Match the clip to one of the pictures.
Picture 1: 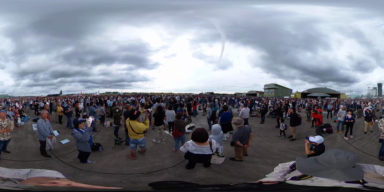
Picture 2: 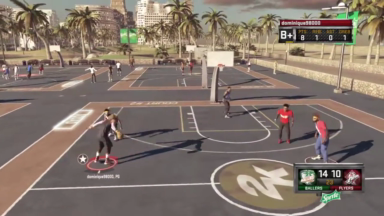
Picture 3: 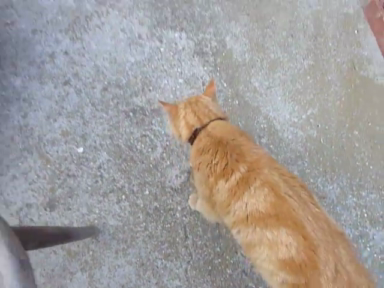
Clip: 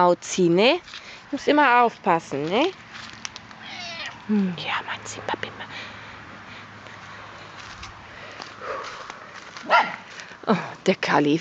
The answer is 3